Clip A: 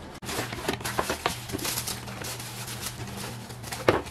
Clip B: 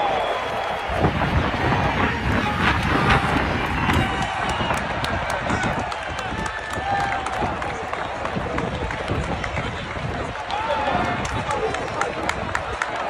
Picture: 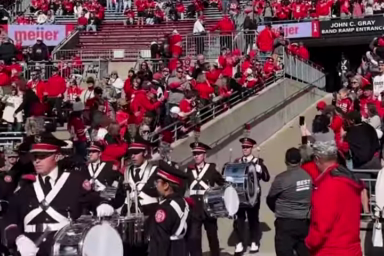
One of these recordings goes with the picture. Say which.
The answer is B